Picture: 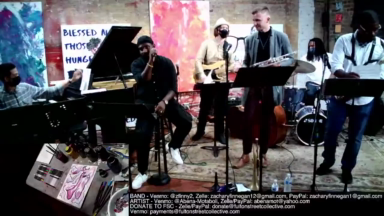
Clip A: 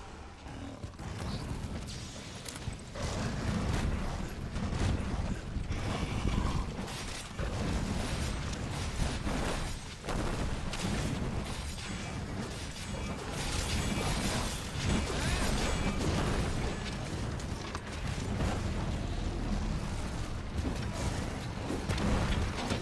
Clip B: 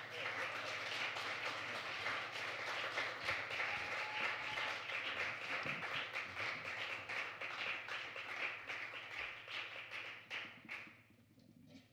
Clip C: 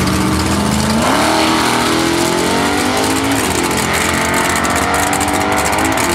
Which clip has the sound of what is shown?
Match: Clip B